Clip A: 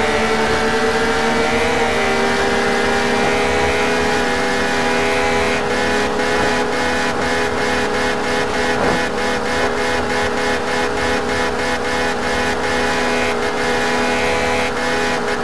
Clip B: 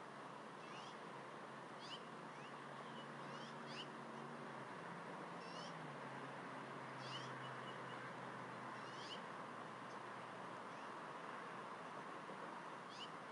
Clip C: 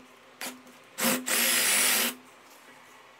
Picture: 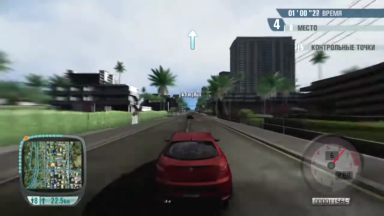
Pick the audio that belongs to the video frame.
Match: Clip A